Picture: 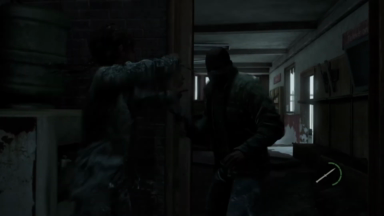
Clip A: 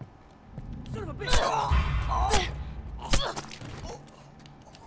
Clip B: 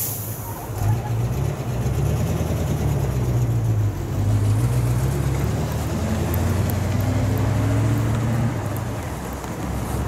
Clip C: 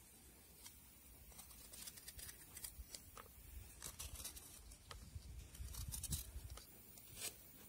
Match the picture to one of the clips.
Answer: A